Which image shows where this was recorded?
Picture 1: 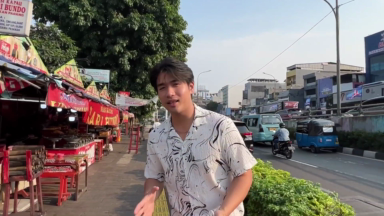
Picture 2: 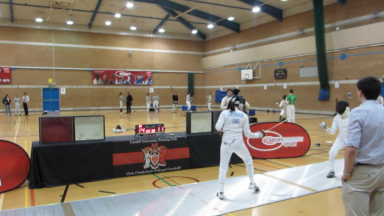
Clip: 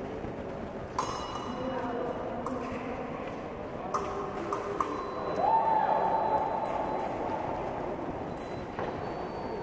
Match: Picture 2